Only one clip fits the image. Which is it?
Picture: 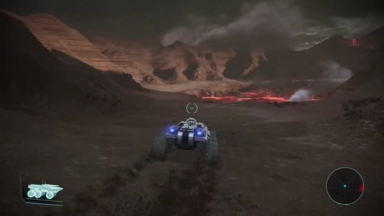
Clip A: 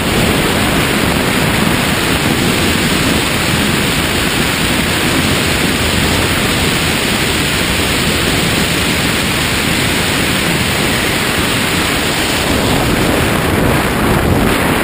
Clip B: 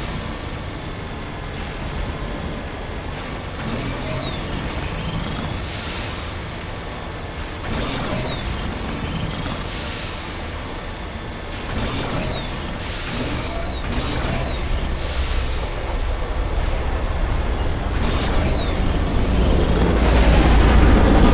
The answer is B